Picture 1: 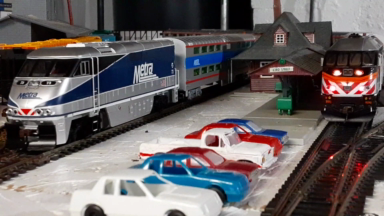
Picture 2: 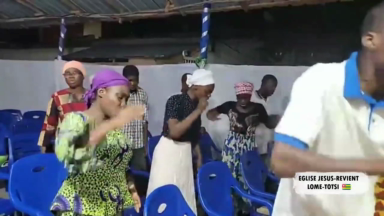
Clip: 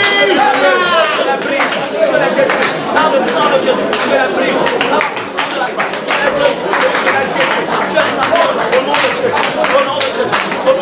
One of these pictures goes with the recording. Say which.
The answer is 2